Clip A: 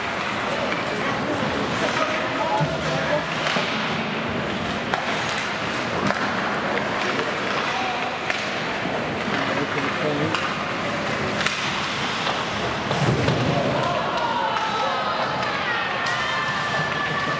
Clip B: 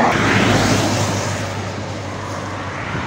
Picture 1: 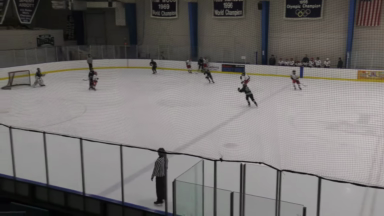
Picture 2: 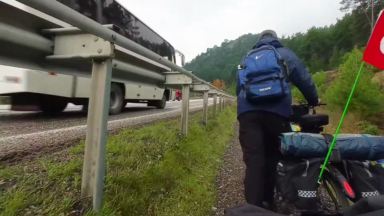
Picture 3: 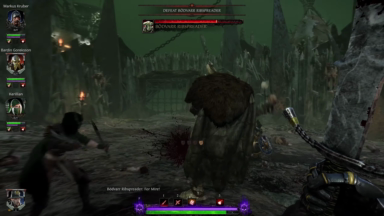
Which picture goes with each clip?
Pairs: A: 1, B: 2